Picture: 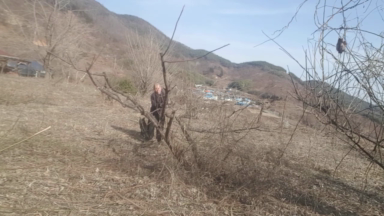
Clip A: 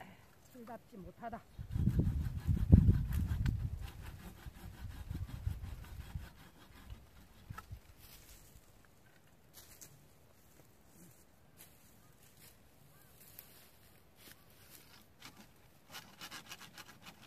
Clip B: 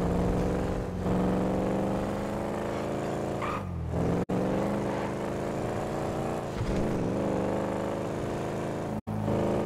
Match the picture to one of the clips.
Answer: A